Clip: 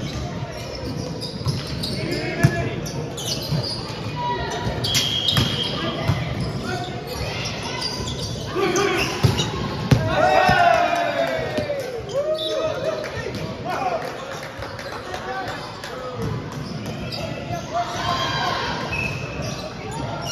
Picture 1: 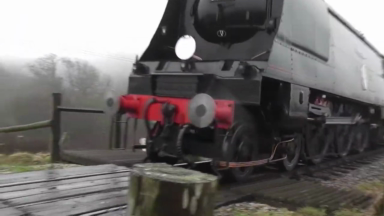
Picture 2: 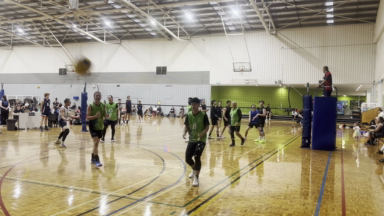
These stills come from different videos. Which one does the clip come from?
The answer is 2